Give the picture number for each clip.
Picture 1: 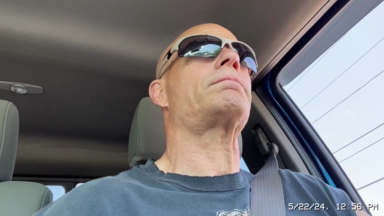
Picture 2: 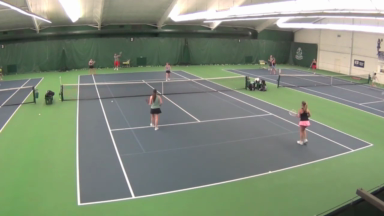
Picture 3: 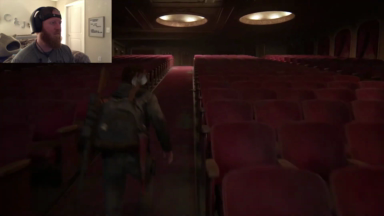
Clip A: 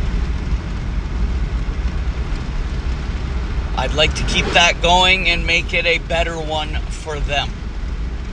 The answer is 1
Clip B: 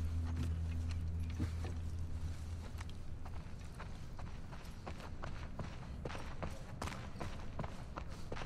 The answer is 3